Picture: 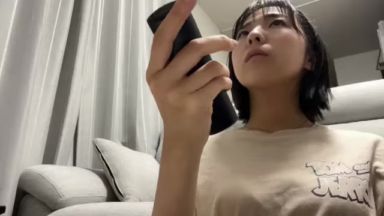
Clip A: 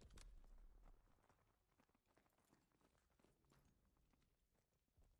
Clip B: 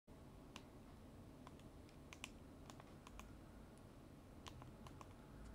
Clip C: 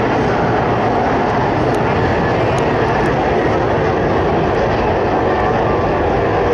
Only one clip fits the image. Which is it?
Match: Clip B